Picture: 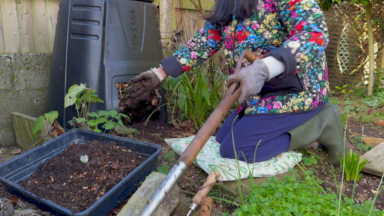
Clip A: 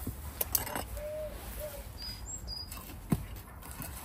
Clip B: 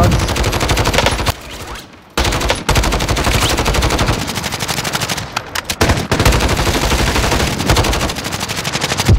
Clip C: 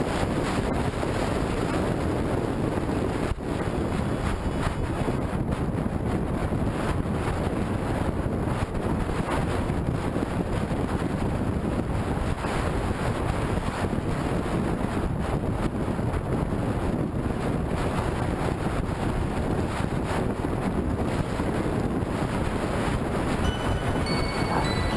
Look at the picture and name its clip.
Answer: A